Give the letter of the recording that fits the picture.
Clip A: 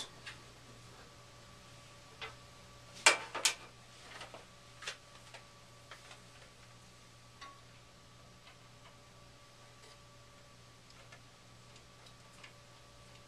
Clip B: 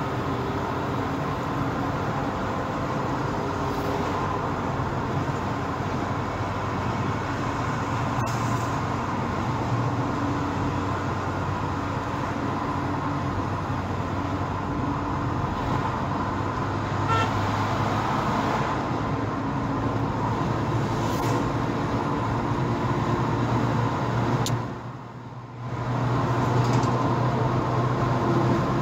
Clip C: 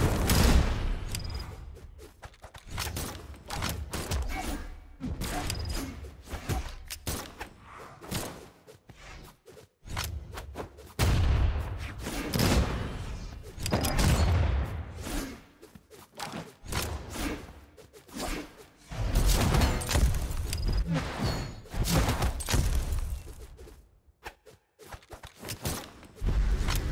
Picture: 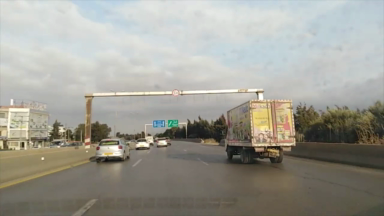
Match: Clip B